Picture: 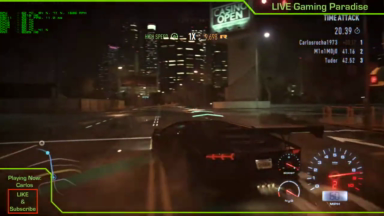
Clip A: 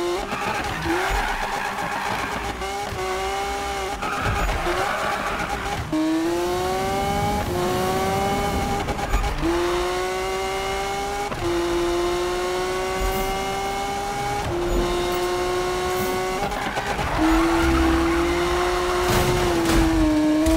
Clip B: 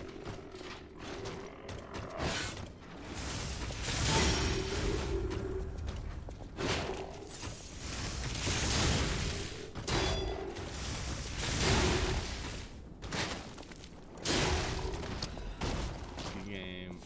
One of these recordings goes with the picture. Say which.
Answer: A